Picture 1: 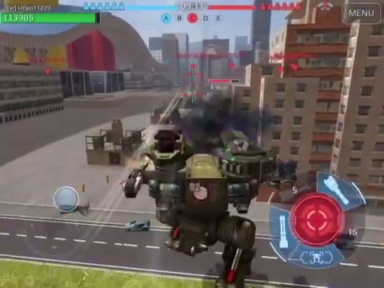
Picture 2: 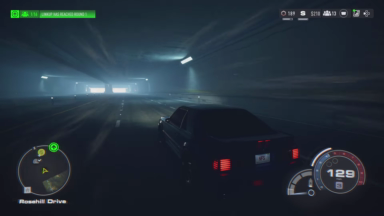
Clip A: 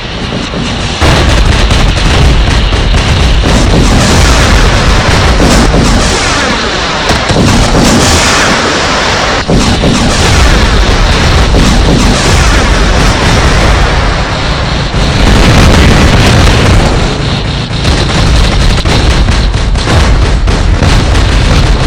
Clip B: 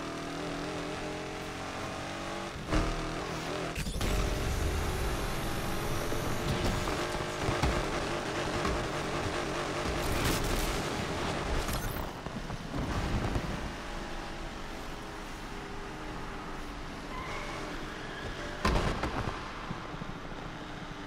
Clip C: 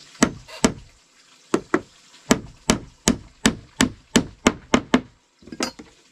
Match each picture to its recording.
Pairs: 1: A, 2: B